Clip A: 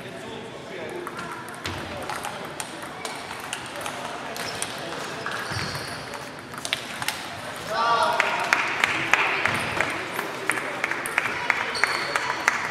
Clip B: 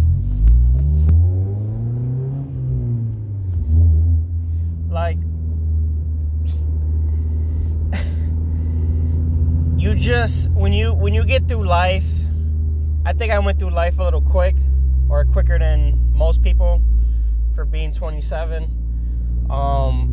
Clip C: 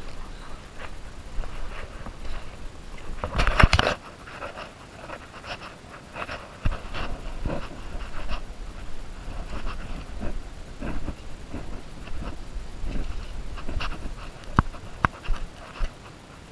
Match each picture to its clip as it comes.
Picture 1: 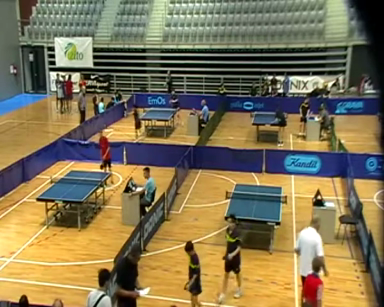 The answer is A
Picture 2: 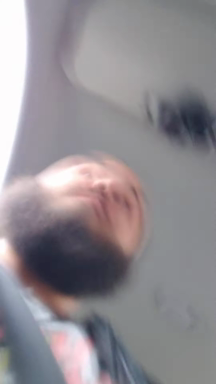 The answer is B